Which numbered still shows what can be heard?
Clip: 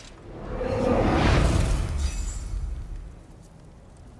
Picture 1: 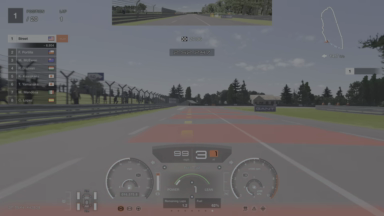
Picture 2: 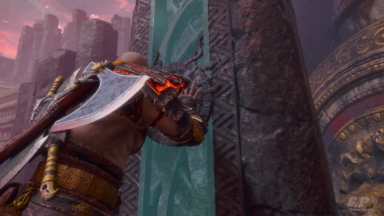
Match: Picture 2